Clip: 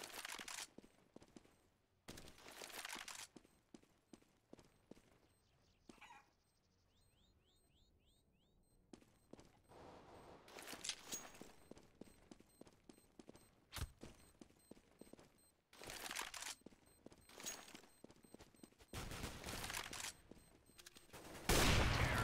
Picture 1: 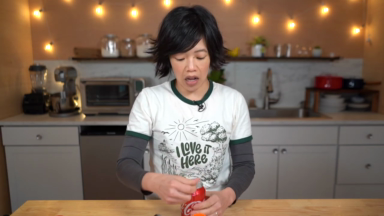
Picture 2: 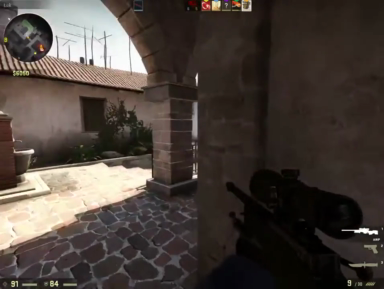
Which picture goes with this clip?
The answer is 2